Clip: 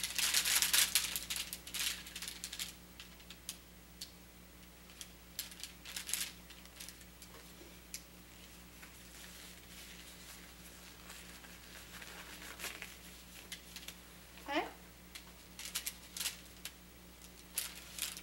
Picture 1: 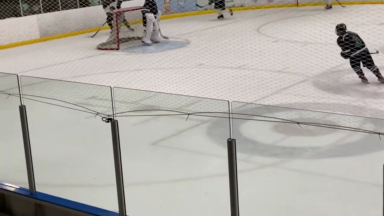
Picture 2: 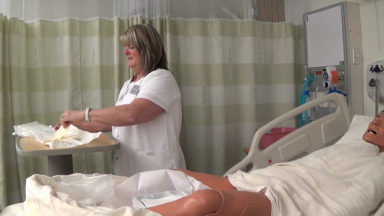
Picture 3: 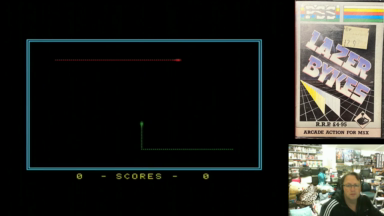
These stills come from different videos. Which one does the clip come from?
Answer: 2